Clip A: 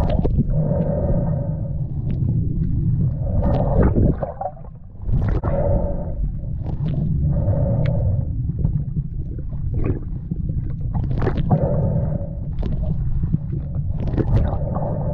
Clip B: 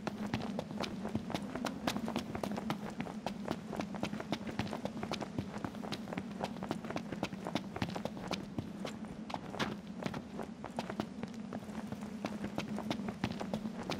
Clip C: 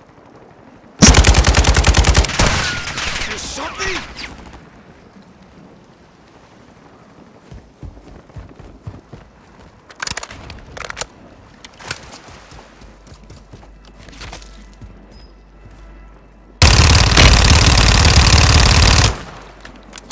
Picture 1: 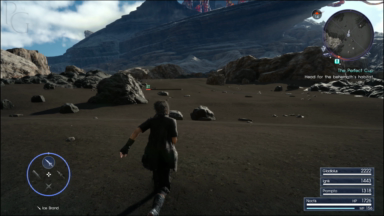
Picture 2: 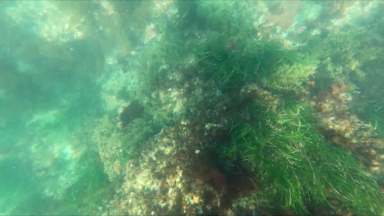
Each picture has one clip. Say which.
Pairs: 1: B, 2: A